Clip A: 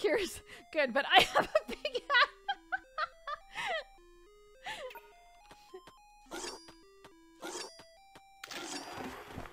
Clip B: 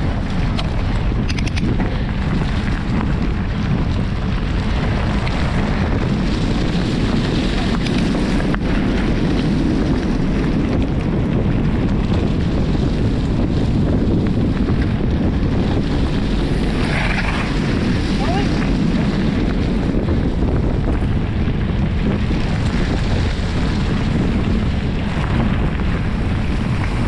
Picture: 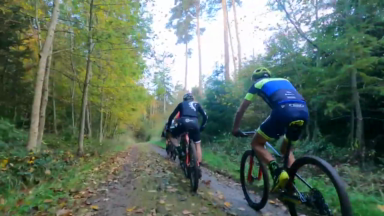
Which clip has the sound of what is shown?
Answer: B